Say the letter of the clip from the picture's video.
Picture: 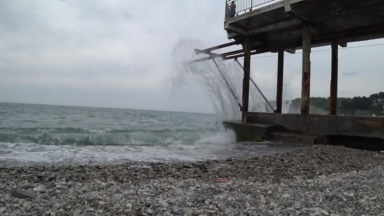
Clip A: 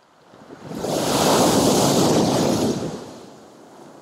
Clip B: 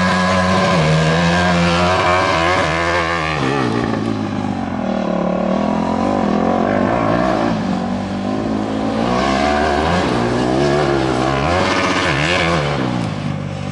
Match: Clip A